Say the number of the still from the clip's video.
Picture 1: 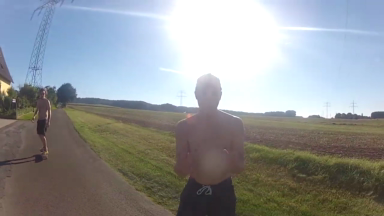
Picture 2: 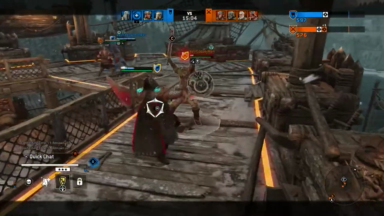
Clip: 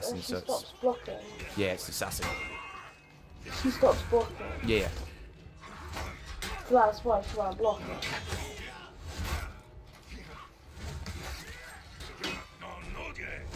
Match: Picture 2